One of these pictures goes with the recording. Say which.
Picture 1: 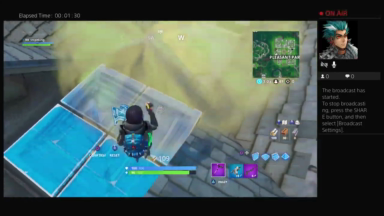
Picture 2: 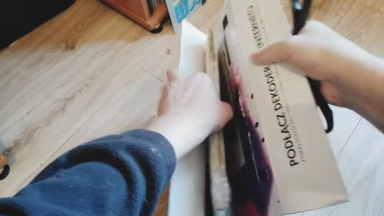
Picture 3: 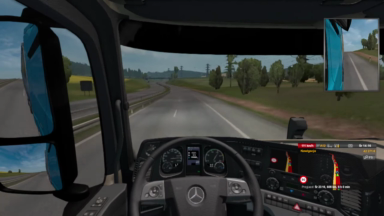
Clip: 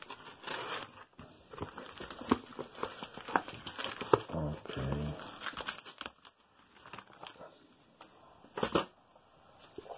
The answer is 2